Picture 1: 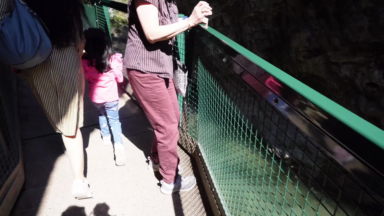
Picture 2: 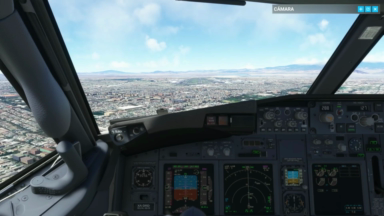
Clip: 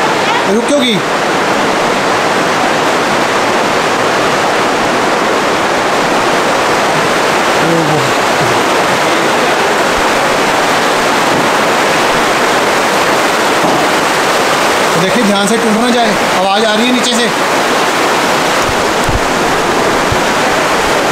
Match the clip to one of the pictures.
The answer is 1